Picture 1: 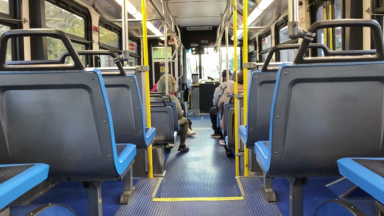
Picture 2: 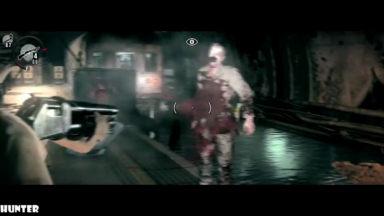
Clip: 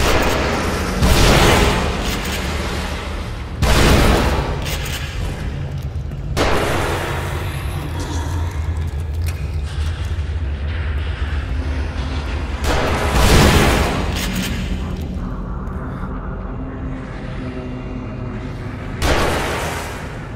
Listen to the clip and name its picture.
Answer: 2